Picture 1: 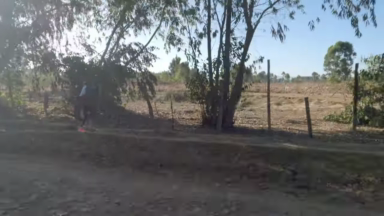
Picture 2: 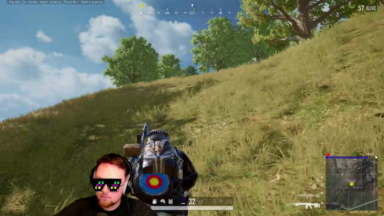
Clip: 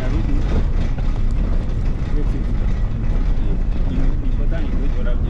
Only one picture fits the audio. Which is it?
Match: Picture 1